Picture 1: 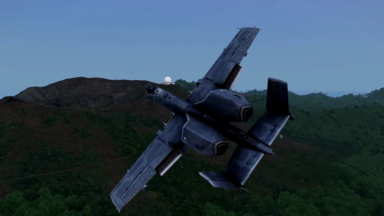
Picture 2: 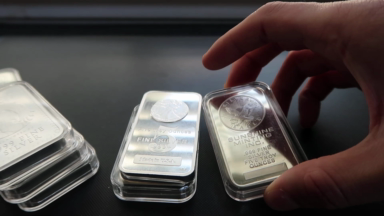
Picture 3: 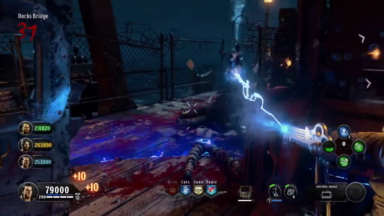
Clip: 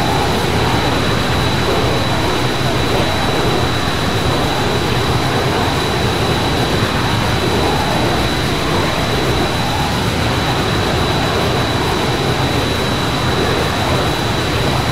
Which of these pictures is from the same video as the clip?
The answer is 1